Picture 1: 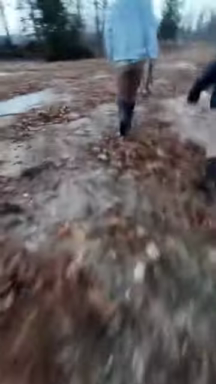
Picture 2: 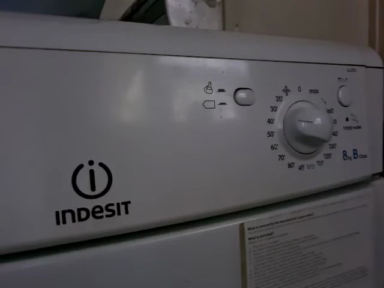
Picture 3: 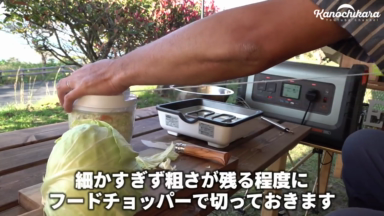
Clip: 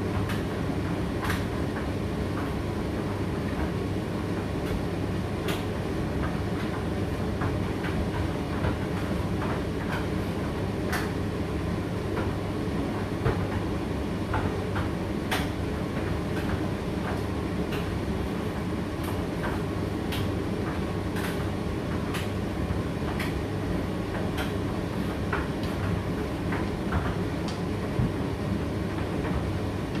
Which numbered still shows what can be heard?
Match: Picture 2